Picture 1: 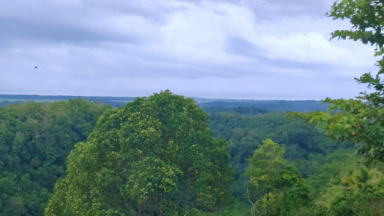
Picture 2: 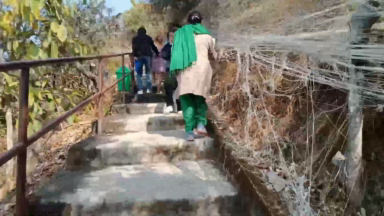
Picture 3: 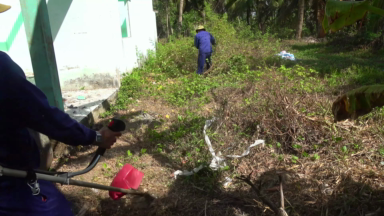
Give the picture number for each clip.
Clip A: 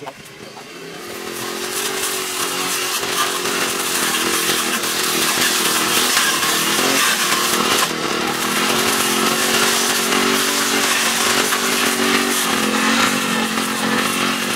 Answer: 3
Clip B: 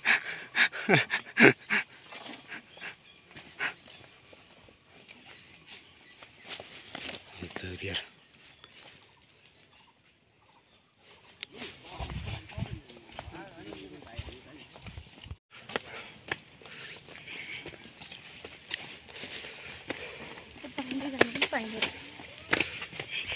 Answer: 2